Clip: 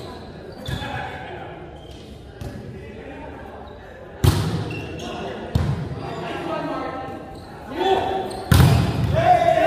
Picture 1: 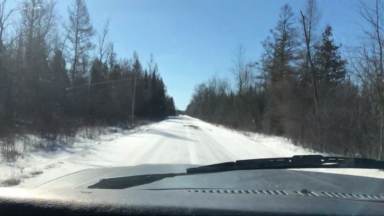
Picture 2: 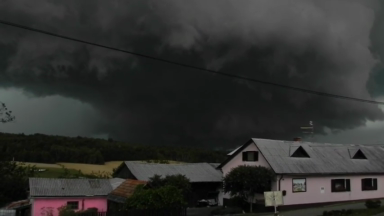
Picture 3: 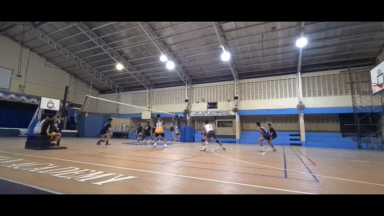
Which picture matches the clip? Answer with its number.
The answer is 3